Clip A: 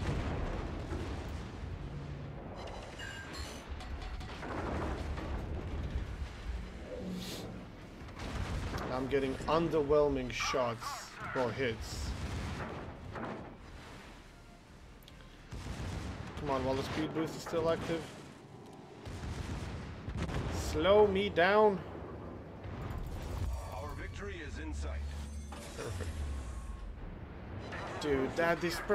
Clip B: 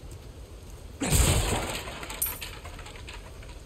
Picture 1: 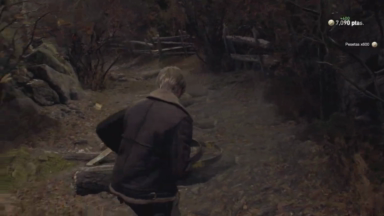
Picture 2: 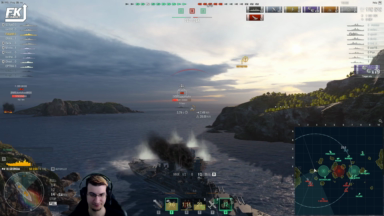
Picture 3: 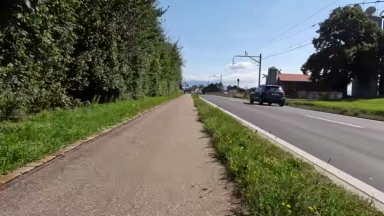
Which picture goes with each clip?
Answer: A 2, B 1